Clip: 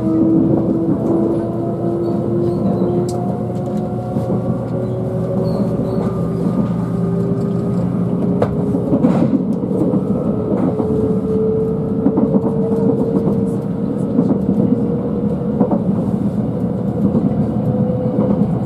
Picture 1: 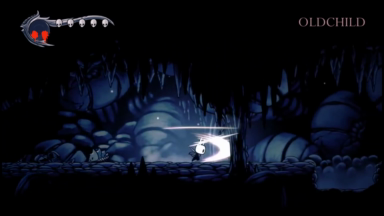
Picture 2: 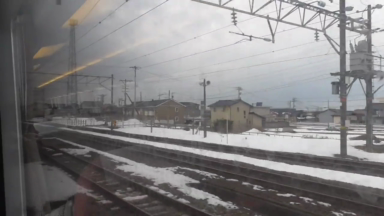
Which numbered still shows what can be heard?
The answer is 2